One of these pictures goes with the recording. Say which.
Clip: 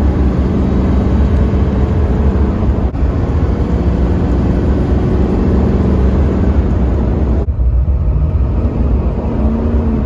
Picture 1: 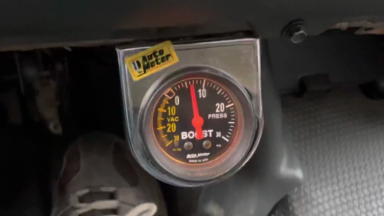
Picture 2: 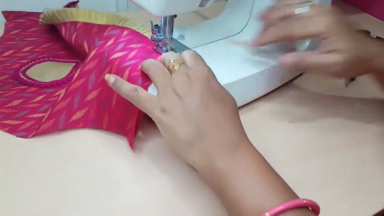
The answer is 1